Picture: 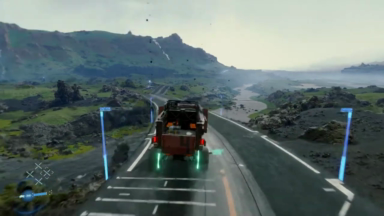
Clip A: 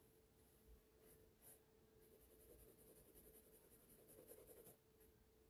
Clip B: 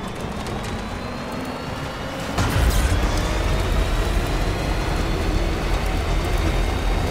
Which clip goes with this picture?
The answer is B